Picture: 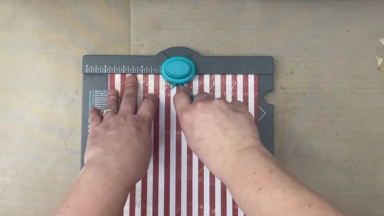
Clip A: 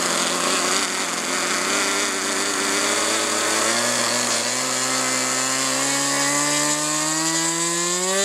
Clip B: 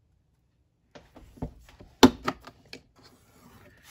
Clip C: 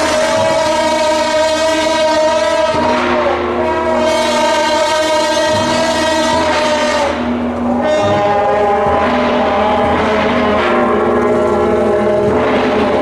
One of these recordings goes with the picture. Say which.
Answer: B